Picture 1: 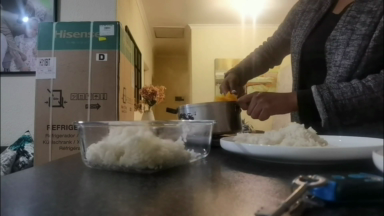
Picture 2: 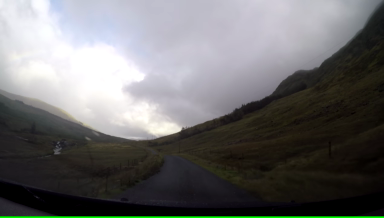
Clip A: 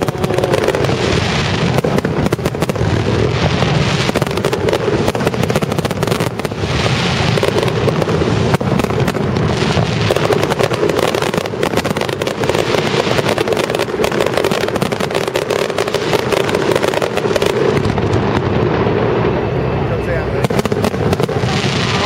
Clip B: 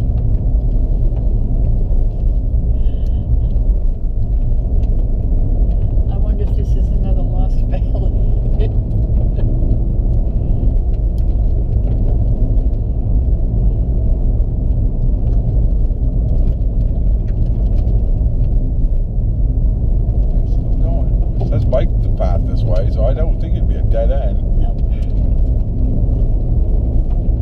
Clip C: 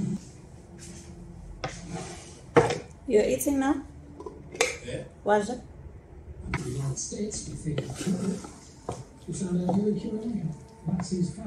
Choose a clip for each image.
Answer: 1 C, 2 B